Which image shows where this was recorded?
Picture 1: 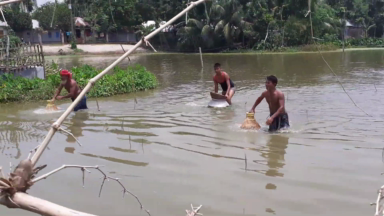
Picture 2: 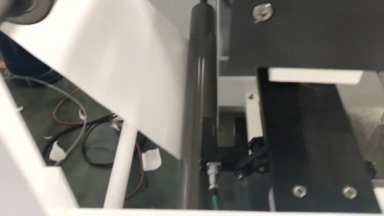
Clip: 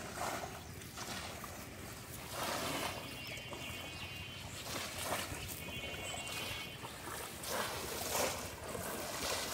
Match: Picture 1